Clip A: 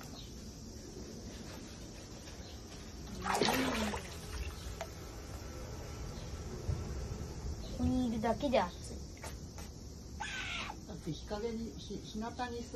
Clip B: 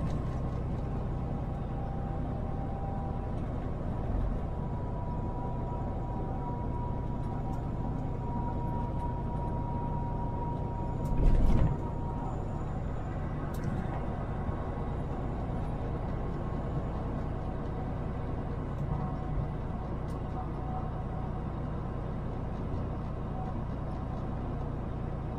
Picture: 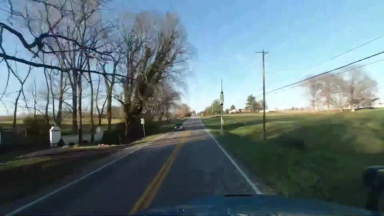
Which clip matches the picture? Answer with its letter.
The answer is B